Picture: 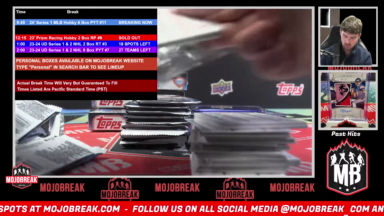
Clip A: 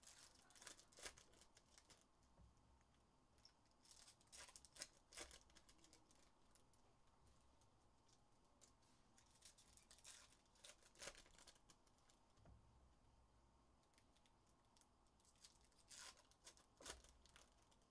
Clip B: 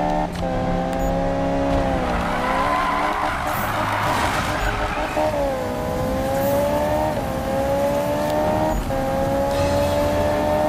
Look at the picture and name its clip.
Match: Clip A